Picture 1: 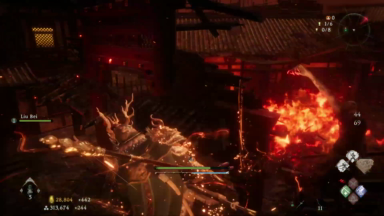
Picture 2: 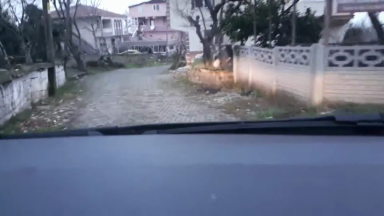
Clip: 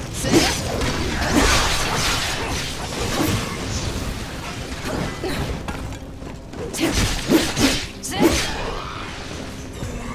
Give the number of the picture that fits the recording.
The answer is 1